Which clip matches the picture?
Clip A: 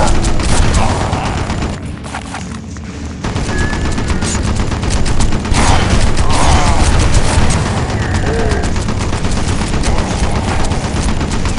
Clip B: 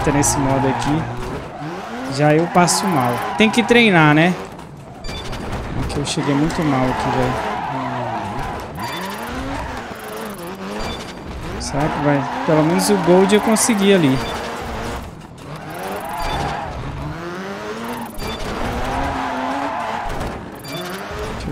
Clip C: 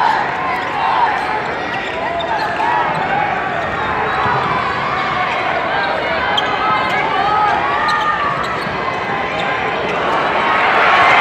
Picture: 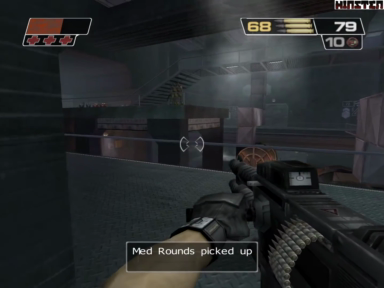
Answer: A